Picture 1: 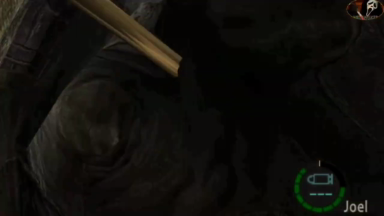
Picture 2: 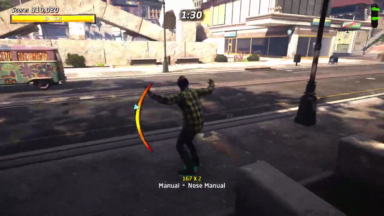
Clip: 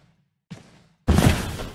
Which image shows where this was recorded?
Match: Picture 1